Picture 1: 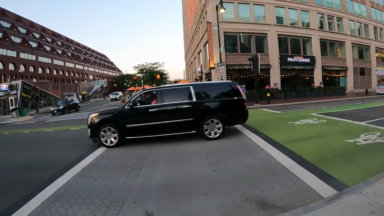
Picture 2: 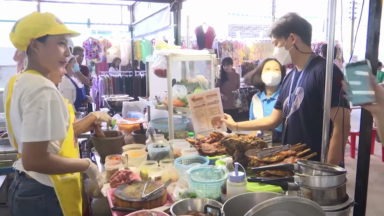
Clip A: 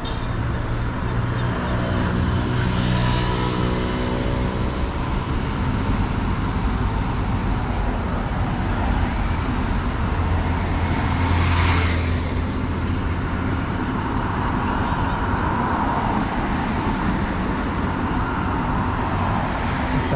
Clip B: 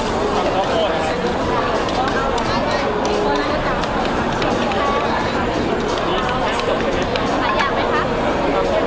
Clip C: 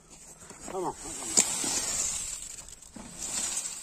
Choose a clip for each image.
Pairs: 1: A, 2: B